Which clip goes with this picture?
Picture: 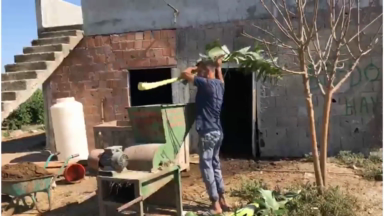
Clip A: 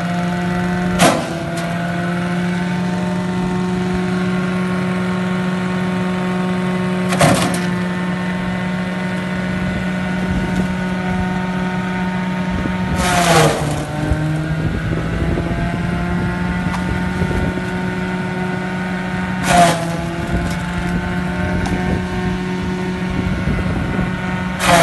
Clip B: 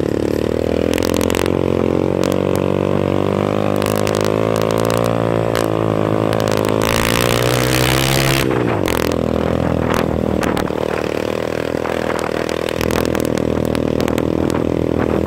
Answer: A